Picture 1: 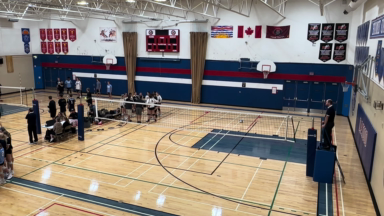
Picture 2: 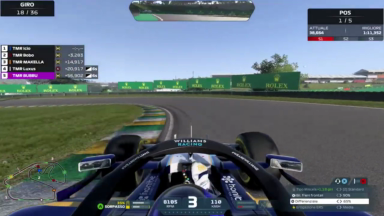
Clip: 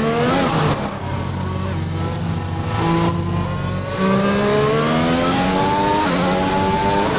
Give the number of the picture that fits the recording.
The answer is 2